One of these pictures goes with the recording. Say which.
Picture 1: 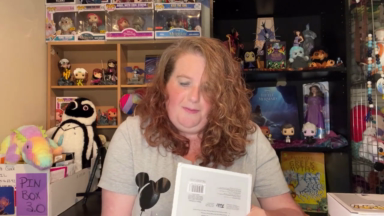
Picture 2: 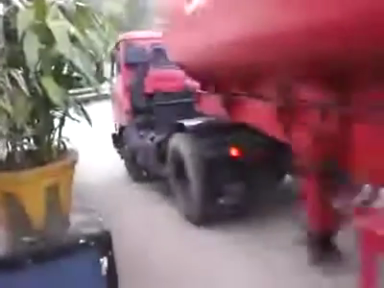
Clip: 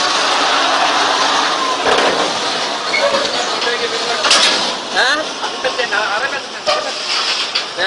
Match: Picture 2